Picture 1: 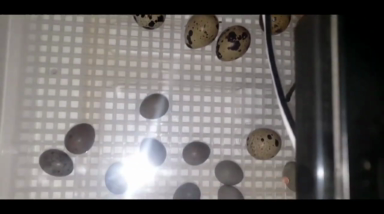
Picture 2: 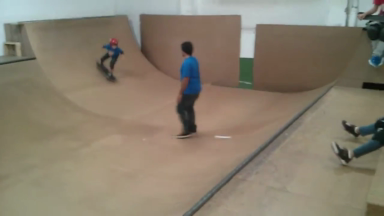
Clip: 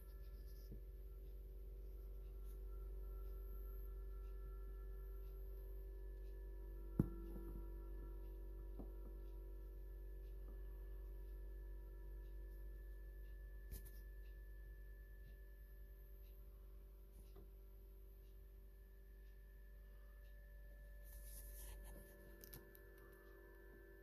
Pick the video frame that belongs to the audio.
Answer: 1